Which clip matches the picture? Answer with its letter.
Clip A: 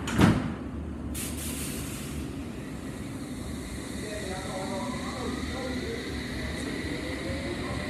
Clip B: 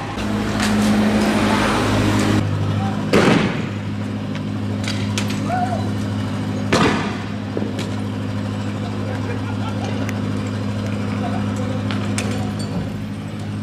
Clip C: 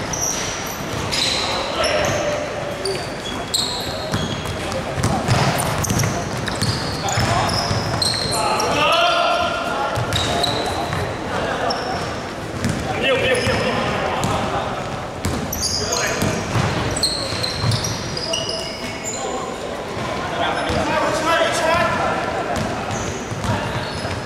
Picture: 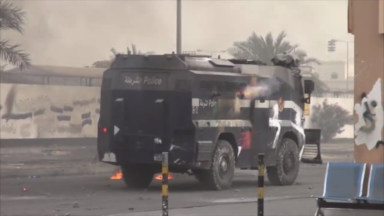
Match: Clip B